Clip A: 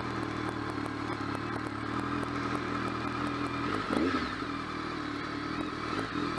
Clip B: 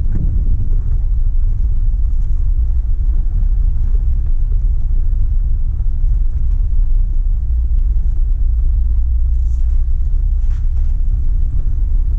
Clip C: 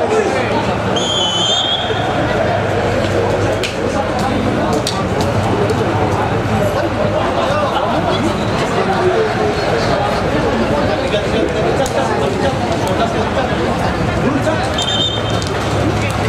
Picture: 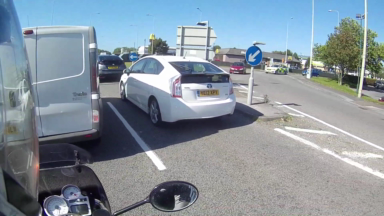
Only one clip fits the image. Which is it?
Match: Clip A